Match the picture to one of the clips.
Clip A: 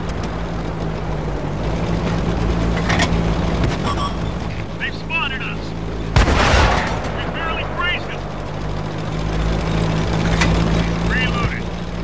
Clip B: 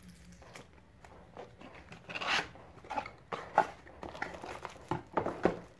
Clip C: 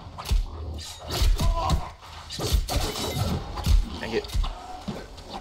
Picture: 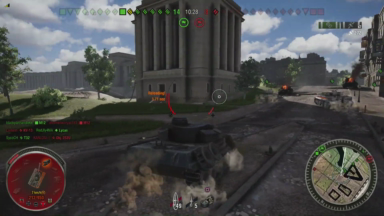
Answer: A